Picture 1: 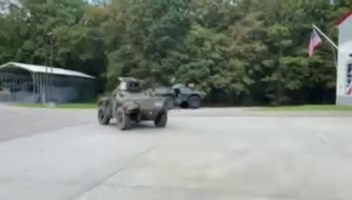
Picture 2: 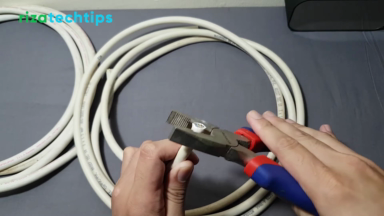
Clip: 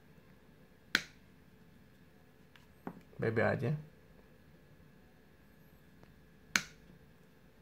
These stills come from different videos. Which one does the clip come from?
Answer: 2